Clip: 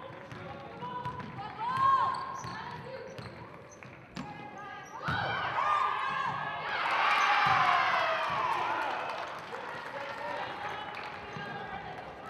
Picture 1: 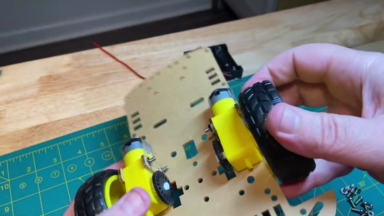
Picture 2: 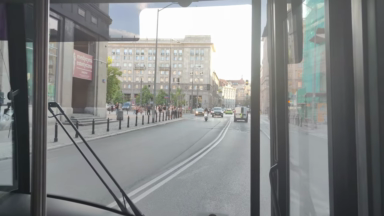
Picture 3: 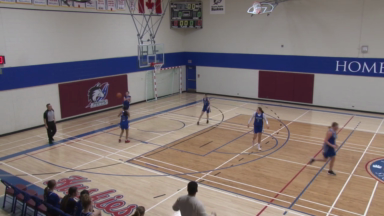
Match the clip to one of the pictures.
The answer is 3